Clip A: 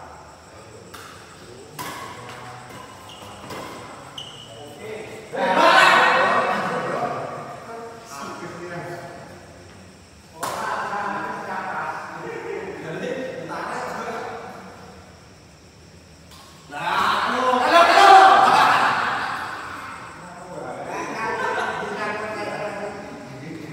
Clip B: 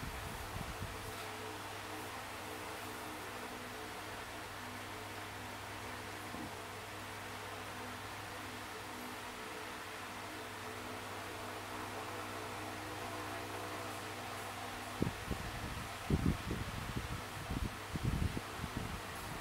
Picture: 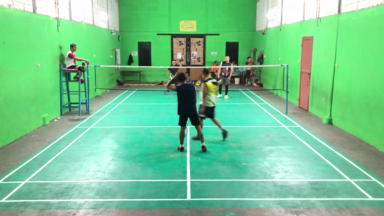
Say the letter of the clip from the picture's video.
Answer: A